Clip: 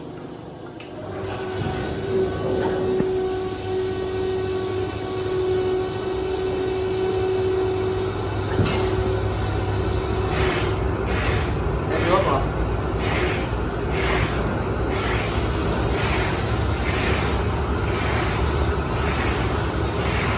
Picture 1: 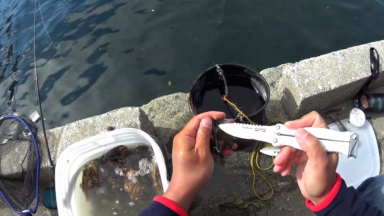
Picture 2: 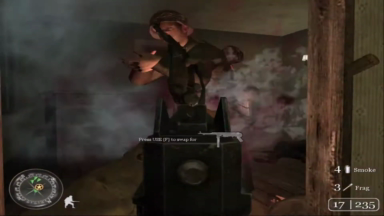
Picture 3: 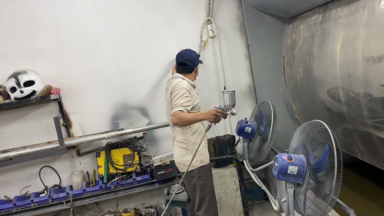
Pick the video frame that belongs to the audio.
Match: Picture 3